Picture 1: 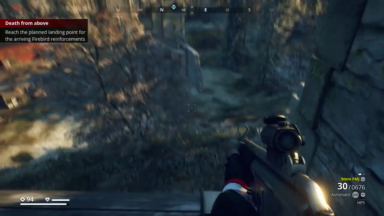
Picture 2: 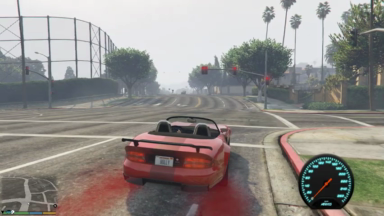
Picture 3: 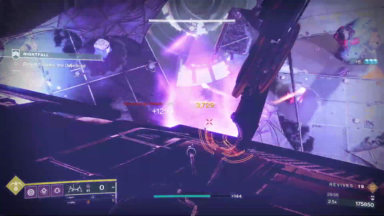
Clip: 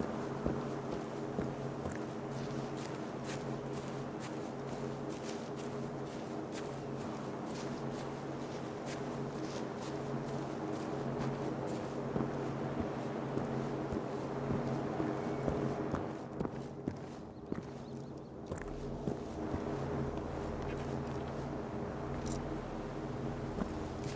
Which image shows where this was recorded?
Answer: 1